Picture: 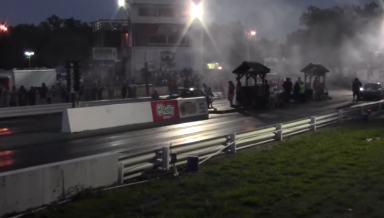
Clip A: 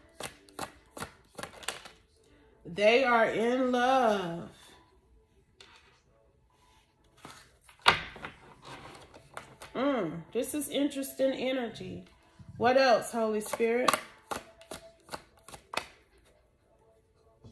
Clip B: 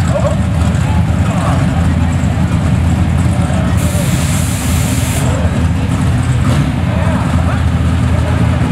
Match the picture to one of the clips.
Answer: B